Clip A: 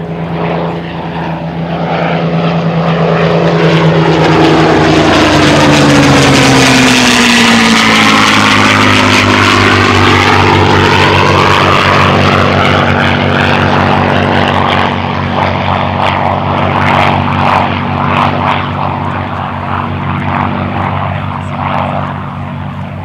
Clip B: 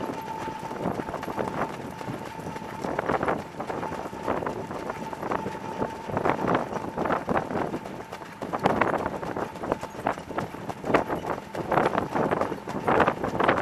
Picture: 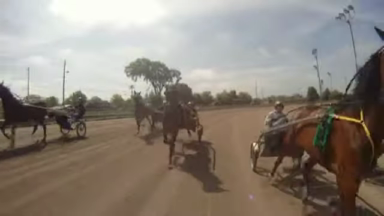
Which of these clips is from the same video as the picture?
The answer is B